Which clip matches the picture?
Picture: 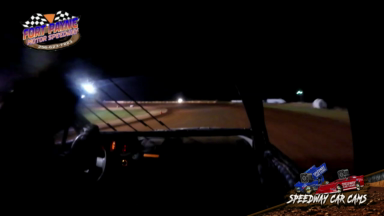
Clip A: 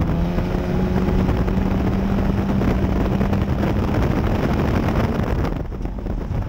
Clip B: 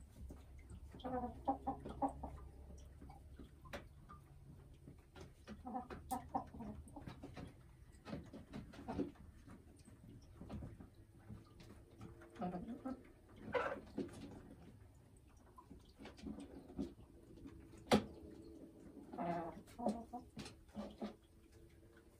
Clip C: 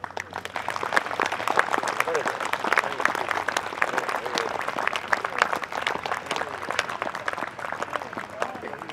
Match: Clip A